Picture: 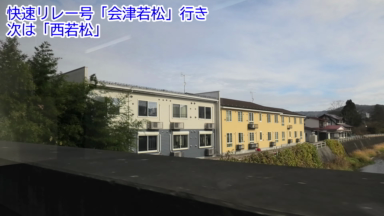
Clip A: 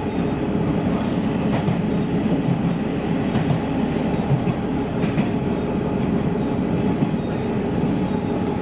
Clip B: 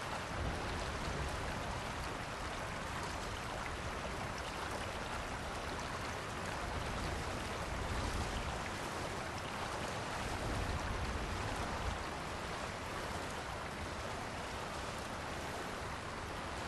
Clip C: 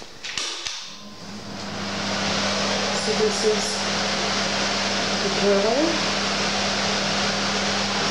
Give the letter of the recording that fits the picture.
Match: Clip A